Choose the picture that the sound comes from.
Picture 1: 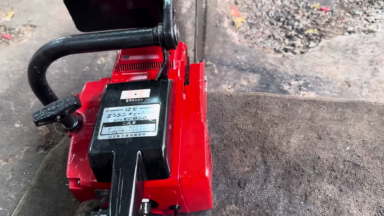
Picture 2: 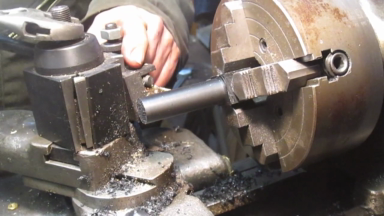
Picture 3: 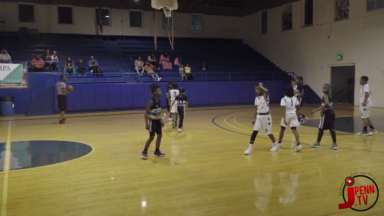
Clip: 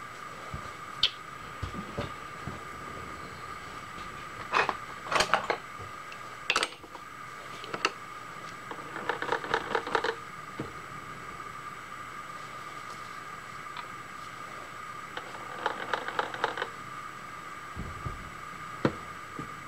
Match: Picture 2